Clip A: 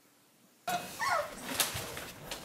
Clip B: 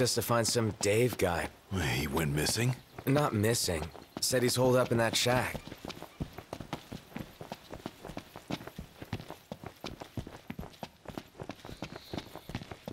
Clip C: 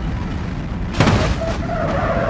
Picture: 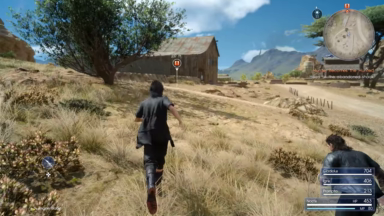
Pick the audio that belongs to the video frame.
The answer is B